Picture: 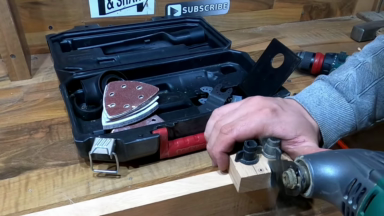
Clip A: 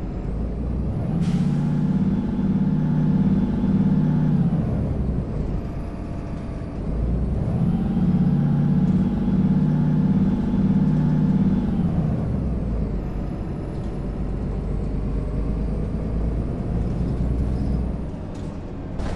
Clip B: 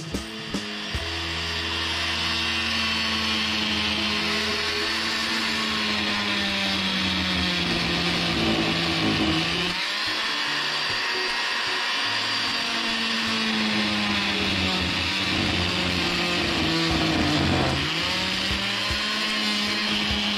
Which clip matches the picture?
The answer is B